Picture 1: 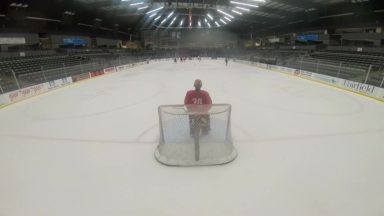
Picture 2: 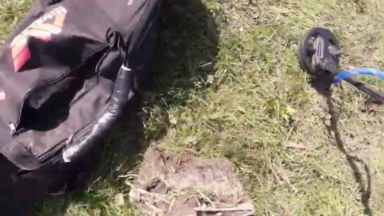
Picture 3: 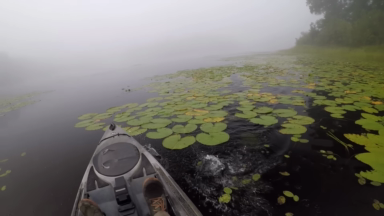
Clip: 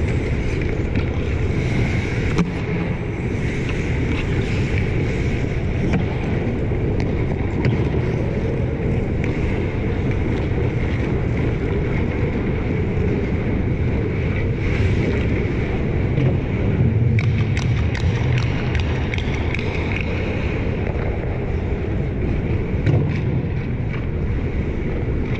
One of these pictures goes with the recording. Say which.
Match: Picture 1